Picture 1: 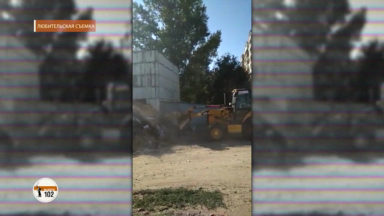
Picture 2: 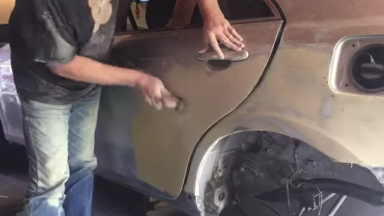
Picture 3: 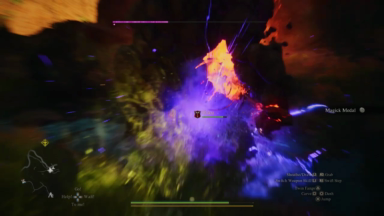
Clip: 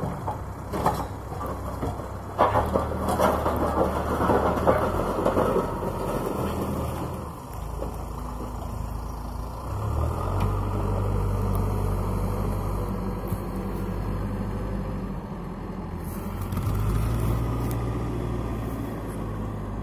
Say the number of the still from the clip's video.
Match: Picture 1